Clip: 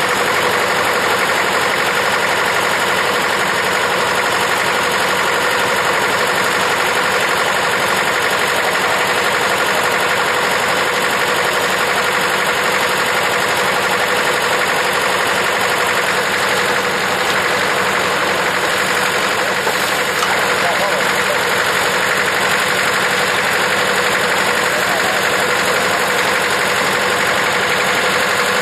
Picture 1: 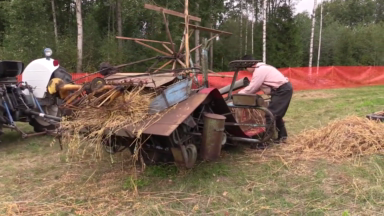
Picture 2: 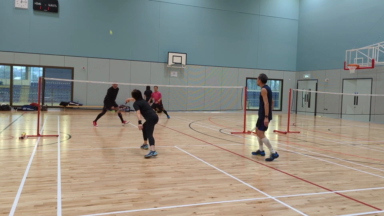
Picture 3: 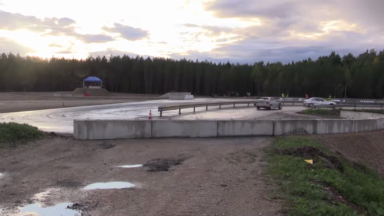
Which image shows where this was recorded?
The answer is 1